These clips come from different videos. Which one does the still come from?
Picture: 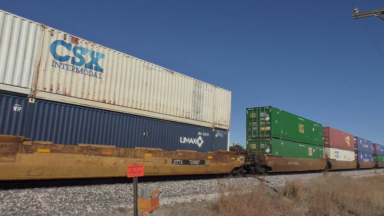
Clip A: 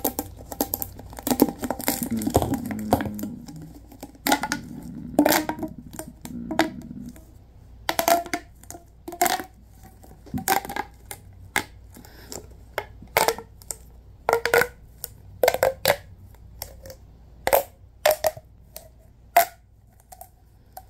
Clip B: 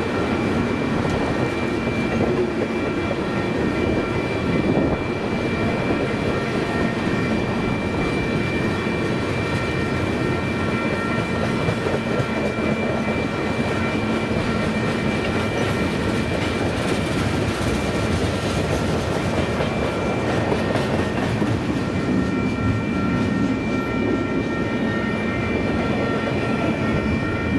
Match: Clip B